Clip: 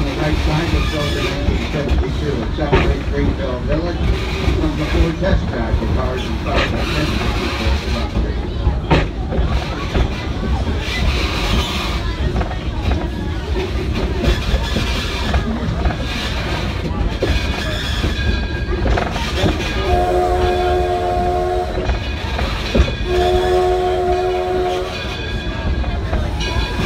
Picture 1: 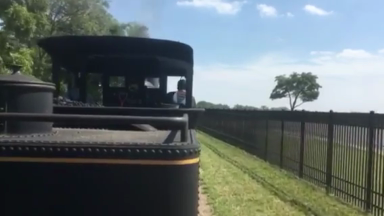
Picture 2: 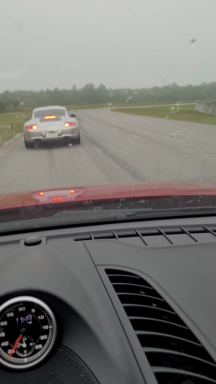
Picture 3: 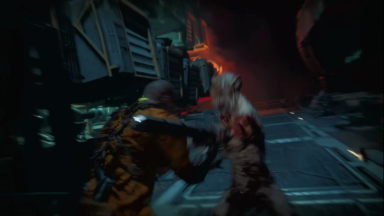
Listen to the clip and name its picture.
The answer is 1